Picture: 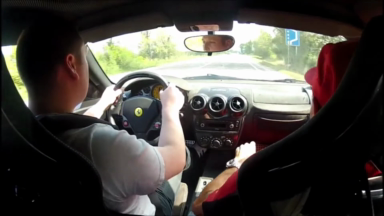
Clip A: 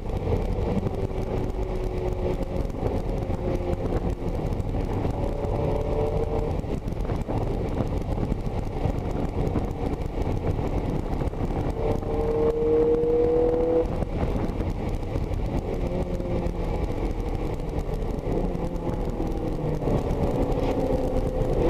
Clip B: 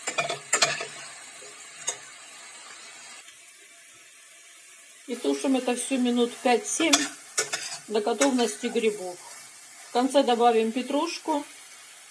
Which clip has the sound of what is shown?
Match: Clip A